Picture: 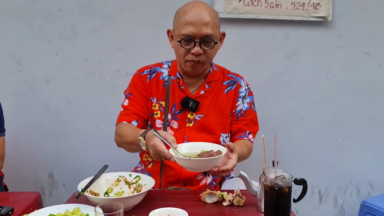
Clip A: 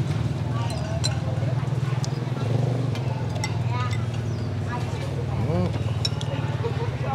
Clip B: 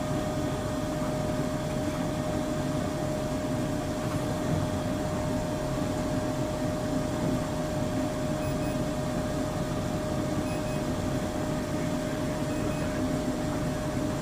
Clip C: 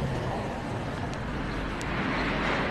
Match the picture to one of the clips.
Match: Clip A